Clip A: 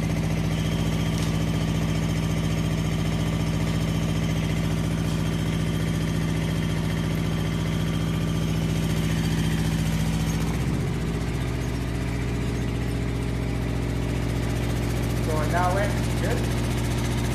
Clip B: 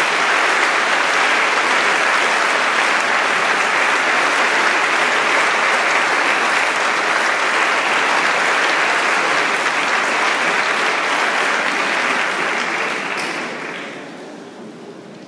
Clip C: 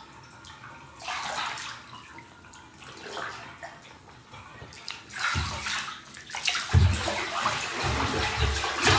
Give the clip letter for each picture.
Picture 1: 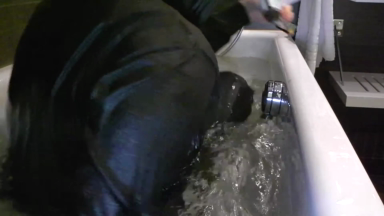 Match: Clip C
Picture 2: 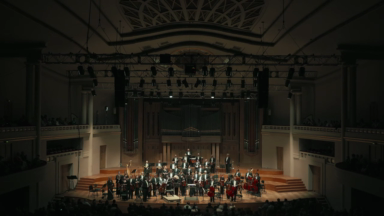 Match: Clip B